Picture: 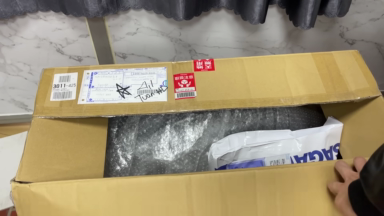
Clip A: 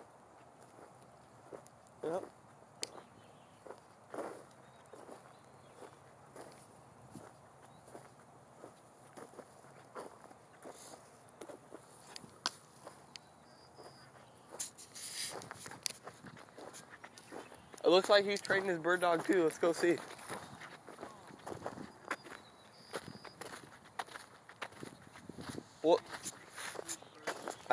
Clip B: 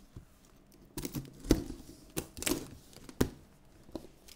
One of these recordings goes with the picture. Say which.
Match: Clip B